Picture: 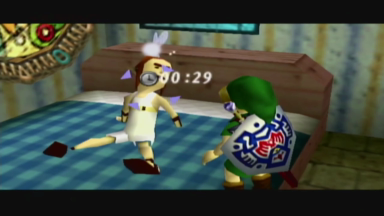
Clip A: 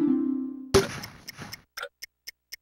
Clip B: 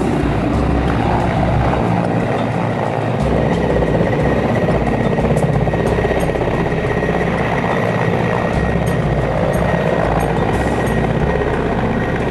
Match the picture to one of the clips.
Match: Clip A